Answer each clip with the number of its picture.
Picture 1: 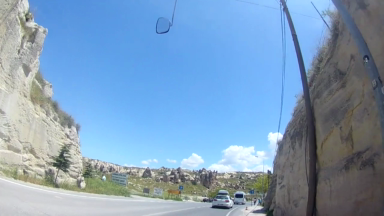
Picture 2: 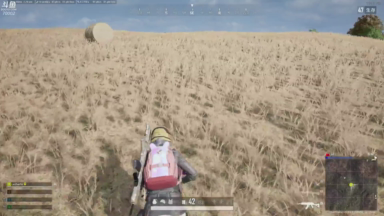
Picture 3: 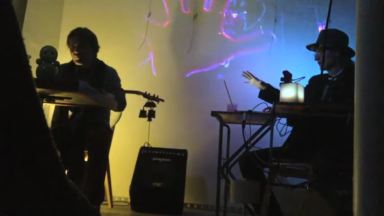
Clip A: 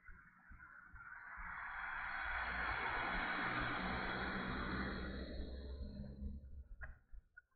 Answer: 1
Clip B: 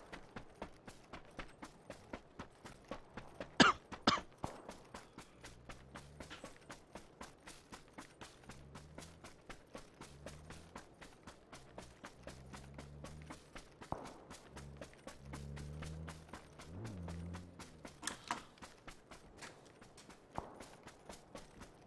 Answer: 2